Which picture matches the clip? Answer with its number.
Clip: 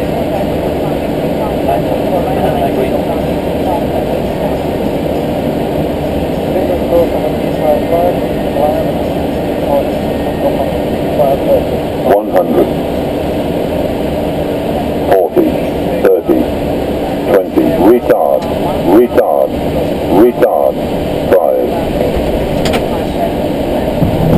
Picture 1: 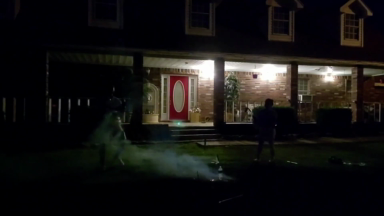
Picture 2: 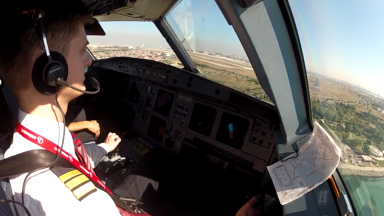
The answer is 2